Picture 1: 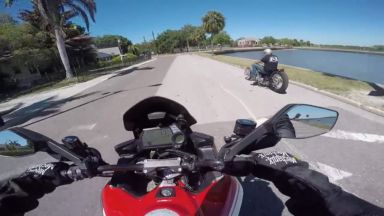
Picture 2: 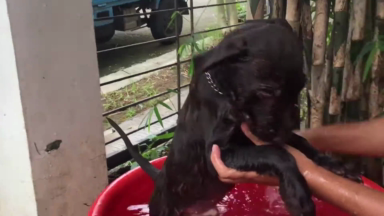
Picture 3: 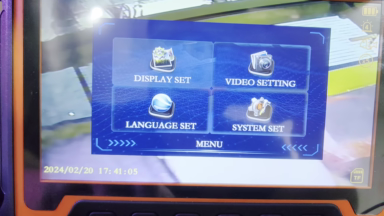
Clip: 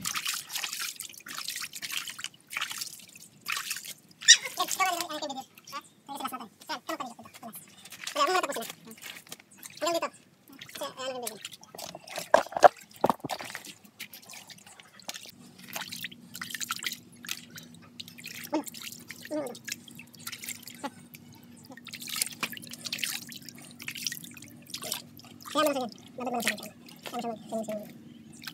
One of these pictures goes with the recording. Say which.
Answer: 2